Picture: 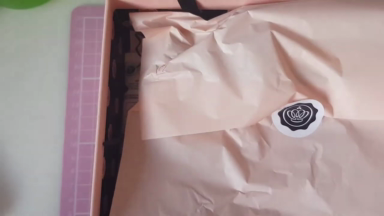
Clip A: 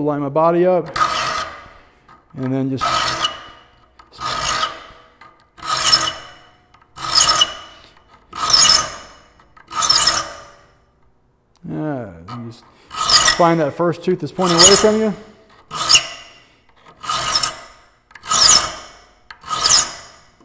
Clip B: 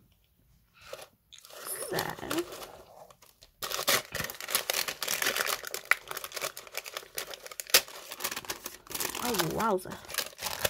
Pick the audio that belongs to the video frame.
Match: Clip B